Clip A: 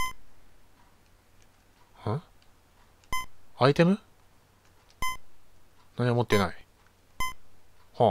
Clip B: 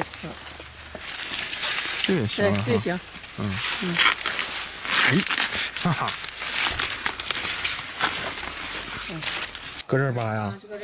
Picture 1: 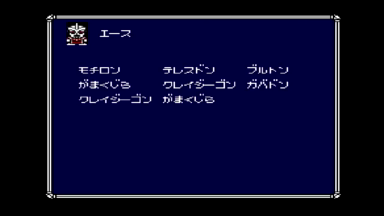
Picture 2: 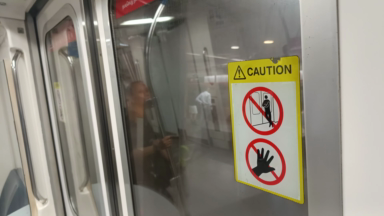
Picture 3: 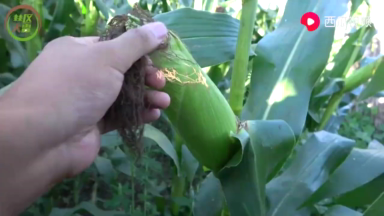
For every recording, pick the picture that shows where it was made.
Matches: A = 1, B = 3